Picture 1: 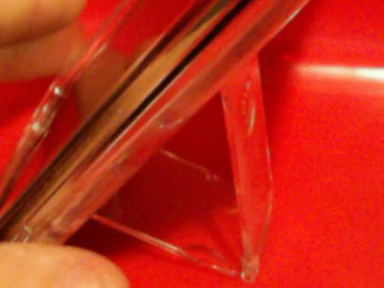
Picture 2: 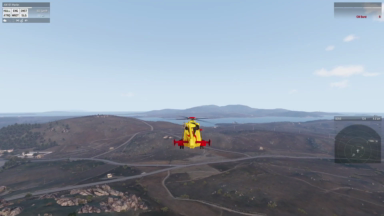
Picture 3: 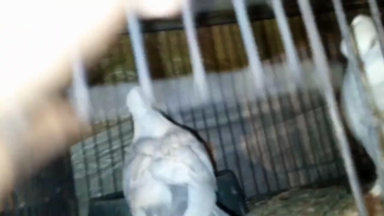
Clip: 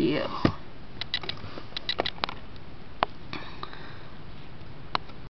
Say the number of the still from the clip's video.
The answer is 1